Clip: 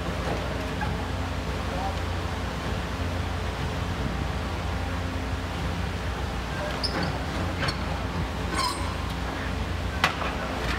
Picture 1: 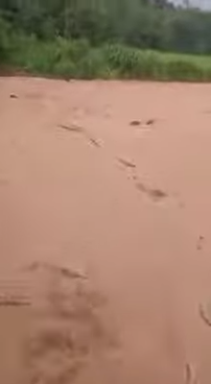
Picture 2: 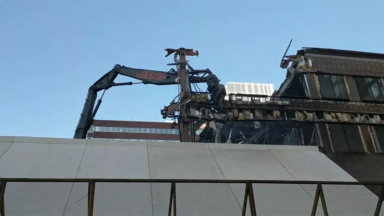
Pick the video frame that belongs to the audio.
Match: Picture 2